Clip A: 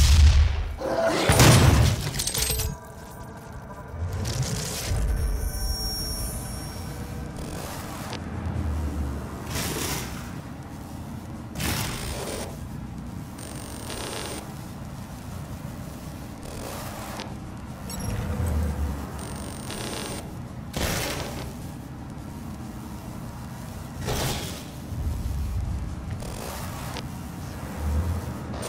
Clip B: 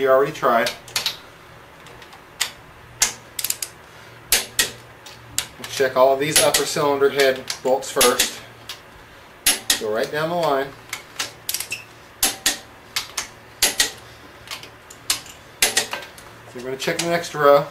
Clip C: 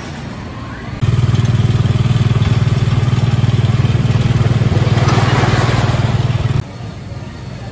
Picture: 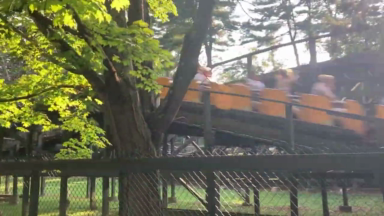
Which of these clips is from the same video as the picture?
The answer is C